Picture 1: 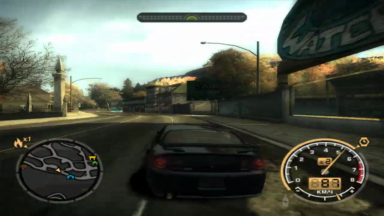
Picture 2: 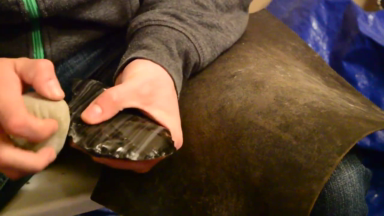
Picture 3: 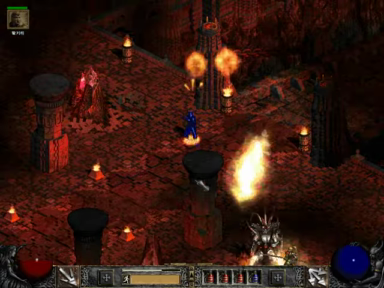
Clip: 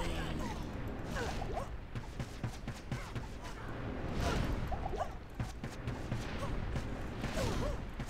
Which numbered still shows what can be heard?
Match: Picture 3